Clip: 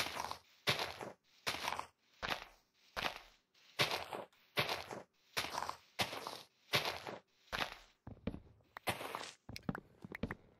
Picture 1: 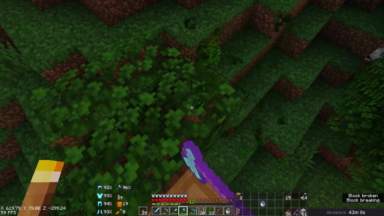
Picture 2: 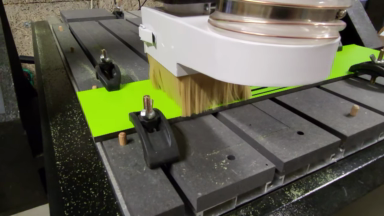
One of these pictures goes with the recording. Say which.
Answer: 1